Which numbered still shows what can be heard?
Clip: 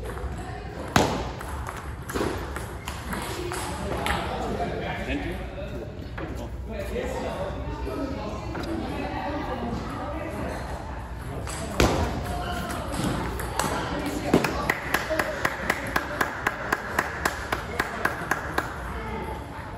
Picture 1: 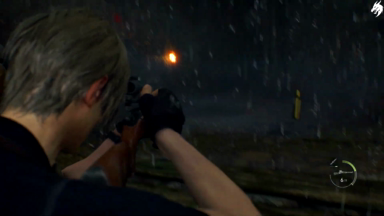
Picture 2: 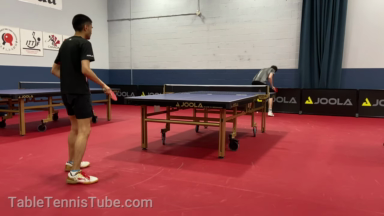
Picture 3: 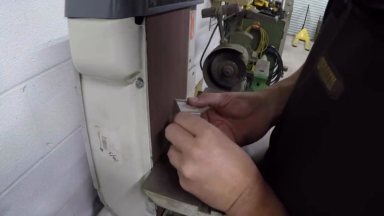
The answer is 2